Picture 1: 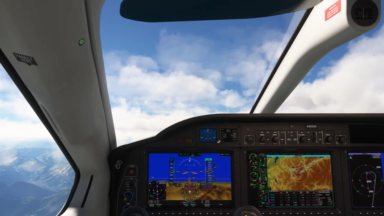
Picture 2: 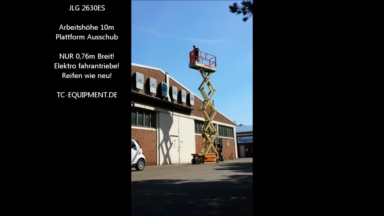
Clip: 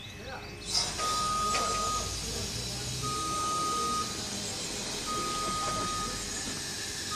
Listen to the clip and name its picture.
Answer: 2